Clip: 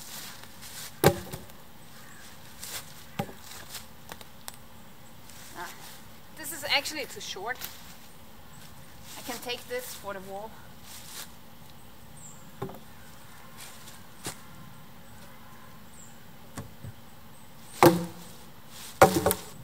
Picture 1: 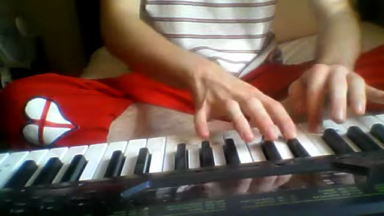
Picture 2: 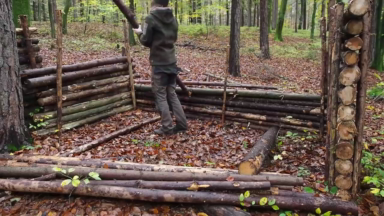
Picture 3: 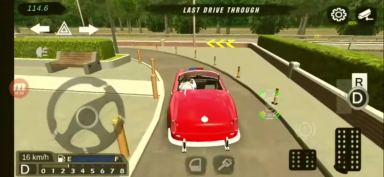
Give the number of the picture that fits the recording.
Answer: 2